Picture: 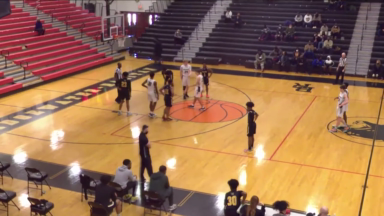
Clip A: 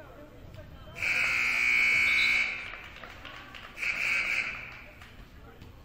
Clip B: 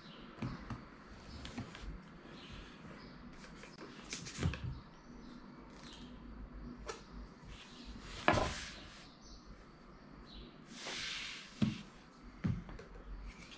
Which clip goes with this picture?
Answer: A